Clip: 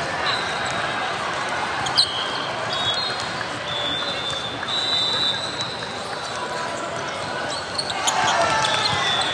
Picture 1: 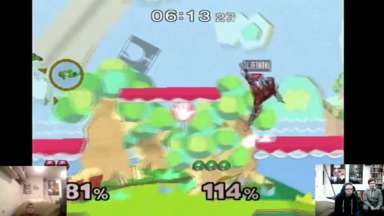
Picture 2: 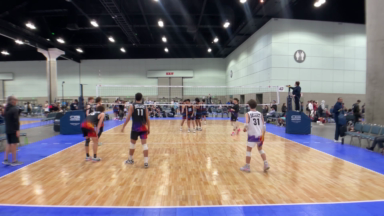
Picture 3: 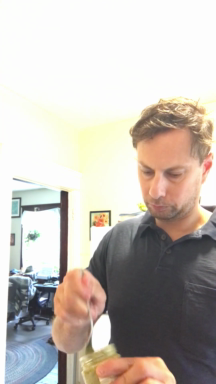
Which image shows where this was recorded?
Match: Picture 2